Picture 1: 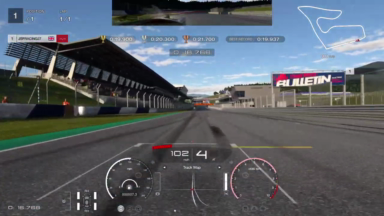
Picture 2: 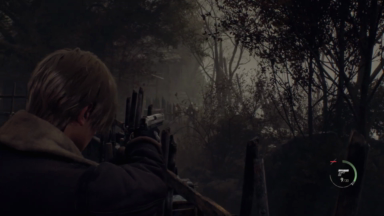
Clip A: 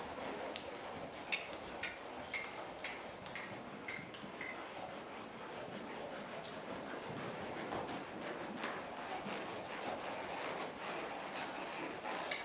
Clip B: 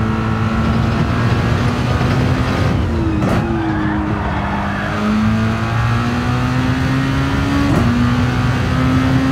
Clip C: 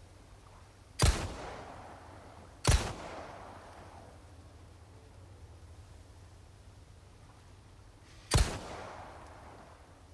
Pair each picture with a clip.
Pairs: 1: B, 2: C